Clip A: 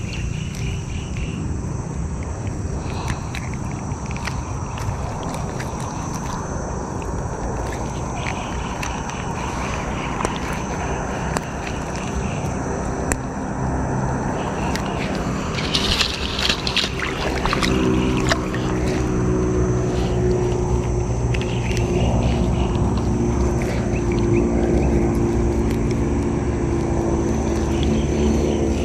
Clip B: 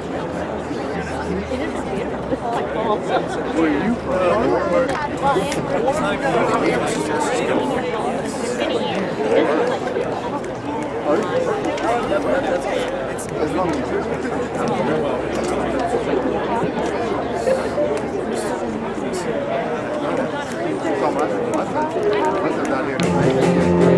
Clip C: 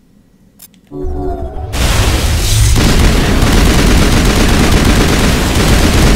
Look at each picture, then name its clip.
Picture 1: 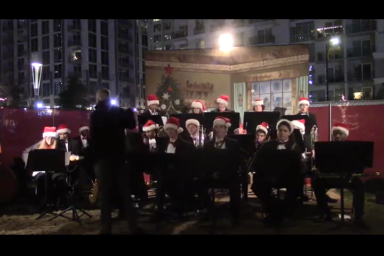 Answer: B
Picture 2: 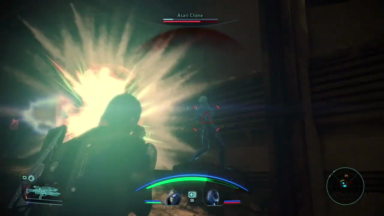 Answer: C